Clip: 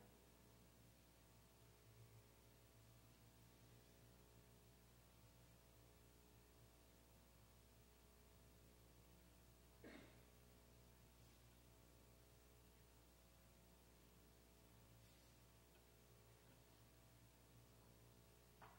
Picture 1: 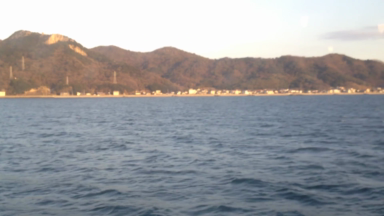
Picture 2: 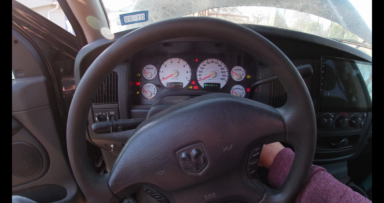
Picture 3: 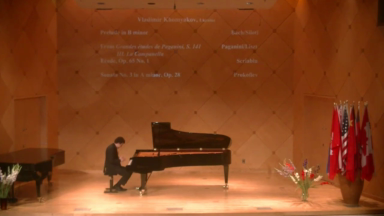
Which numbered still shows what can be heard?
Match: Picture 3